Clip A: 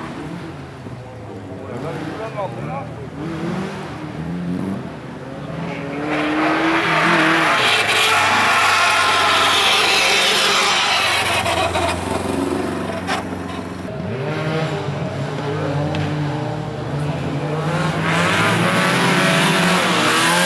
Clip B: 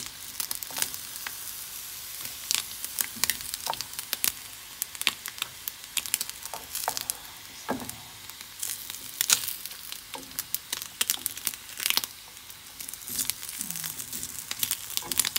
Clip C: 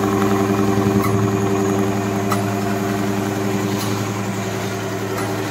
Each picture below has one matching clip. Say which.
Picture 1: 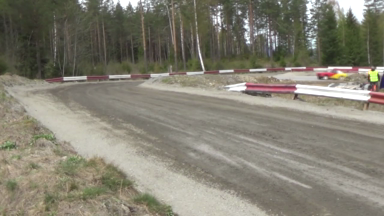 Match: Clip A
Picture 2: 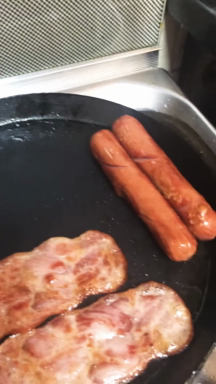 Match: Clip B